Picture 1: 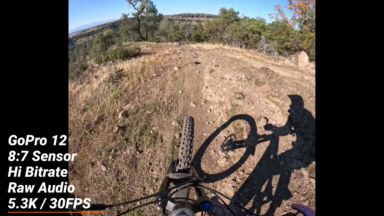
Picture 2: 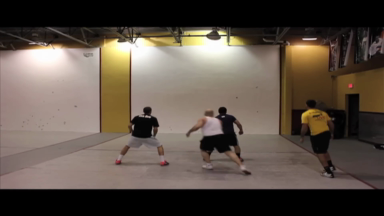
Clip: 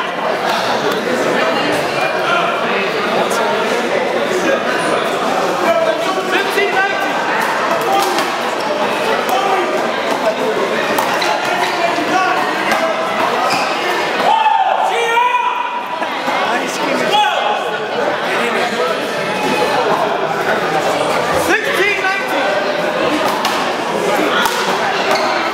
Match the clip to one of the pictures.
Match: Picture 2